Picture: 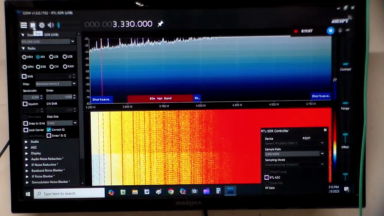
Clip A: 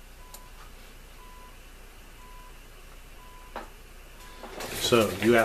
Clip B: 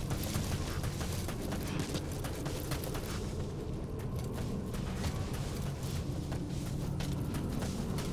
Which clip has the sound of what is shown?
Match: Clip A